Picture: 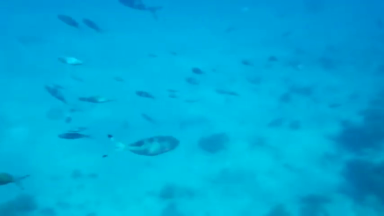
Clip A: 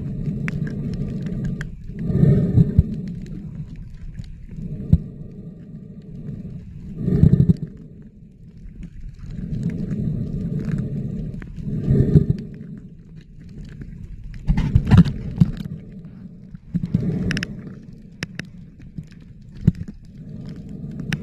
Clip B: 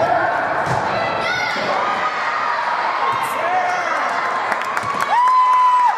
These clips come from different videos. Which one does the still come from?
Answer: A